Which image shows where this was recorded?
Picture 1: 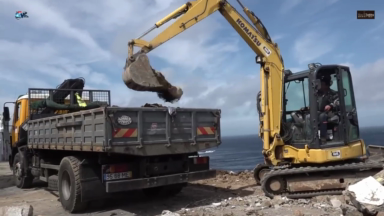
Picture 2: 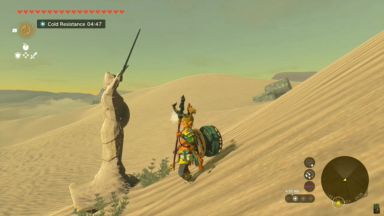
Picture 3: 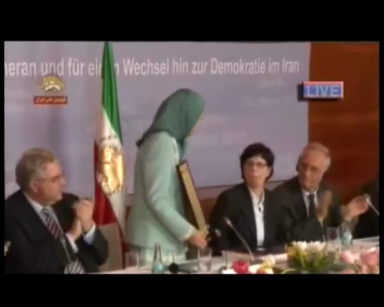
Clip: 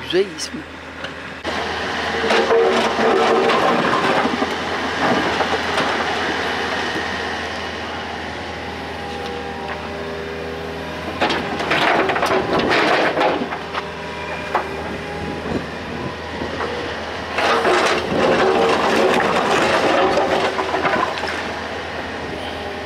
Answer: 1